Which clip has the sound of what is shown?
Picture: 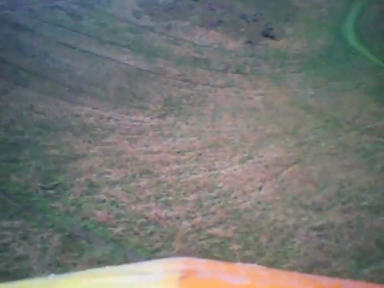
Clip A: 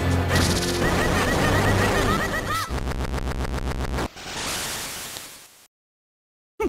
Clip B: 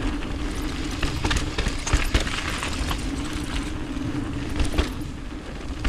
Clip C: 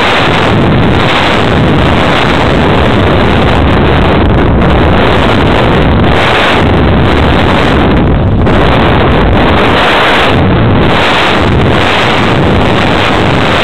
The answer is C